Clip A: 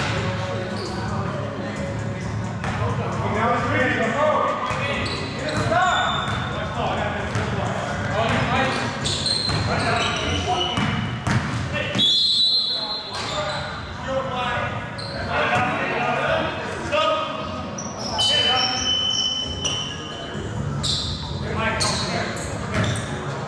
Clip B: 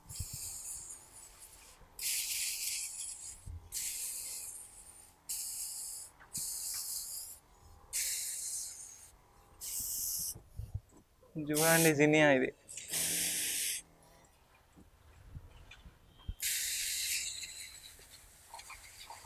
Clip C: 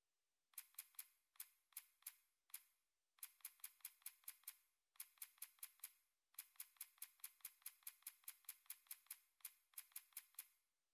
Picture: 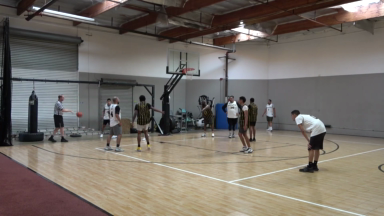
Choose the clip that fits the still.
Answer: A